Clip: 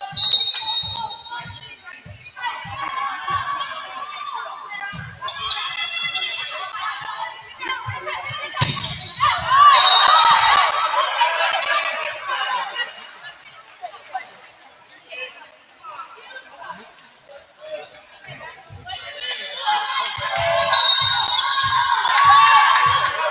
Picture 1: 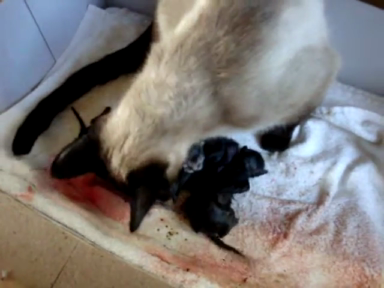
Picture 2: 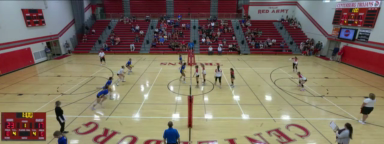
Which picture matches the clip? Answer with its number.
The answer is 2